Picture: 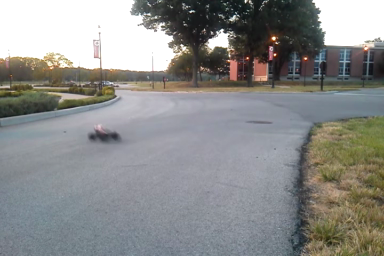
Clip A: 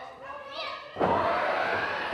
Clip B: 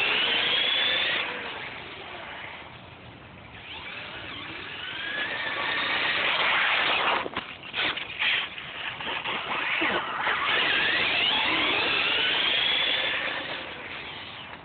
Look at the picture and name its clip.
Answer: B